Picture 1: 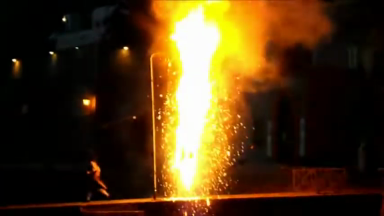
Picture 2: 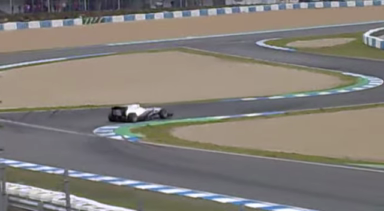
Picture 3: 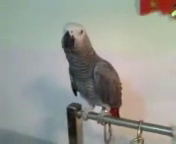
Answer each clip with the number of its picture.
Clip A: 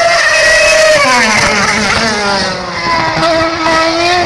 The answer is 2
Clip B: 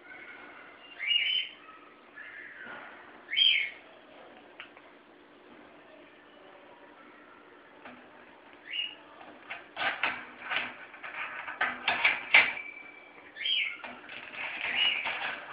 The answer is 3